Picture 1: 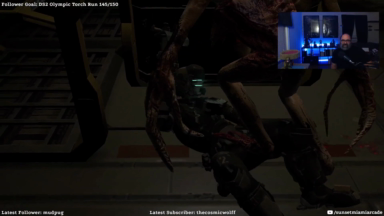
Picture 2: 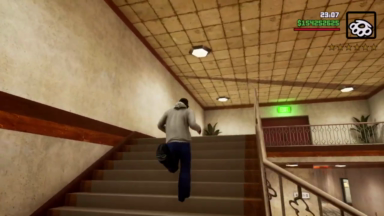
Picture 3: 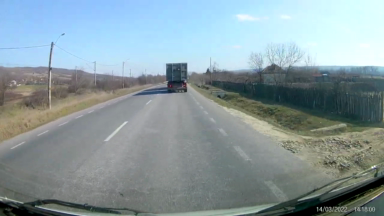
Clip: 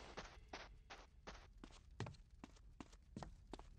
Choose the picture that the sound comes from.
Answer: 2